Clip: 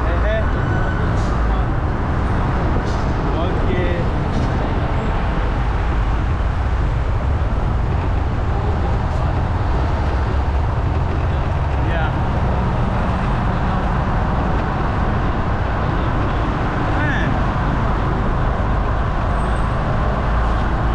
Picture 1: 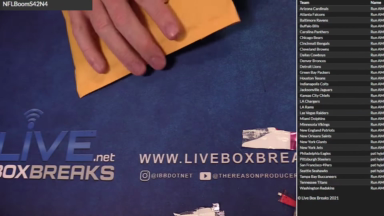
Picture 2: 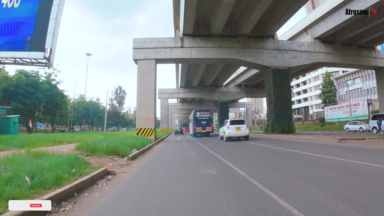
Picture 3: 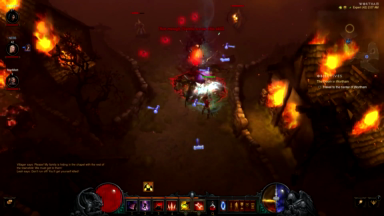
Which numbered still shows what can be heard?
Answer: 2